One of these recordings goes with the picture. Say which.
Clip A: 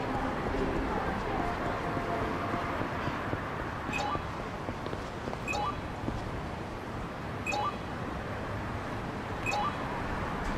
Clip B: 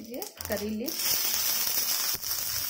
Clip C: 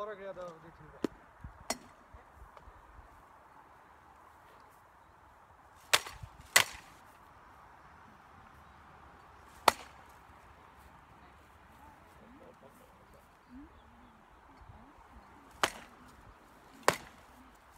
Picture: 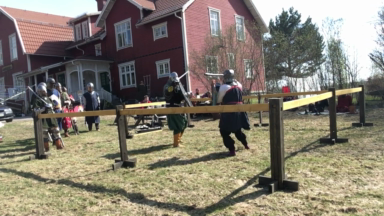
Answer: C